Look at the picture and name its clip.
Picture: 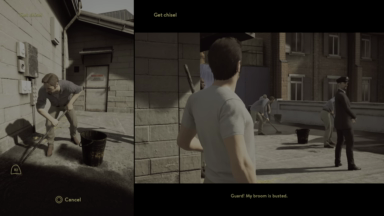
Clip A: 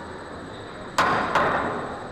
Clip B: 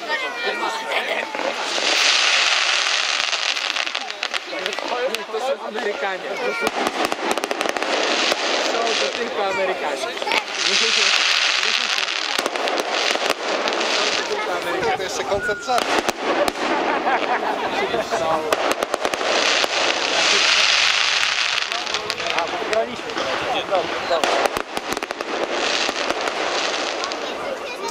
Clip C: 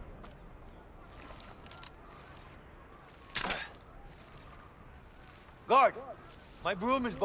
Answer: C